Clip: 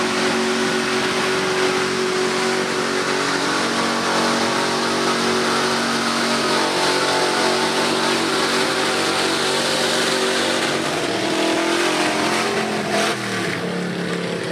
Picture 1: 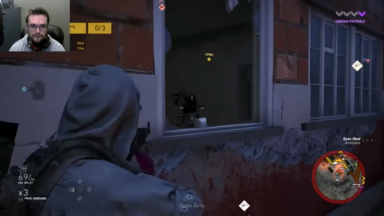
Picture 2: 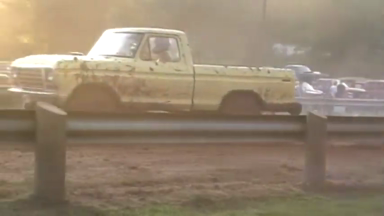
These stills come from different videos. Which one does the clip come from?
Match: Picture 2